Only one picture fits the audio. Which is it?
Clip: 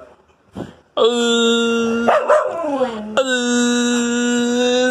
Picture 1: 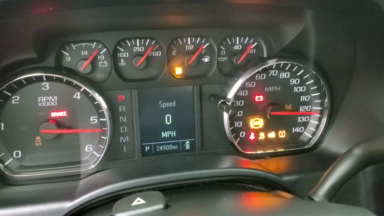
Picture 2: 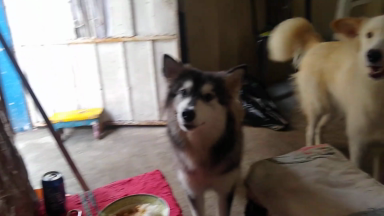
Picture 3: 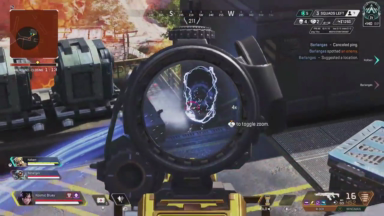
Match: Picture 2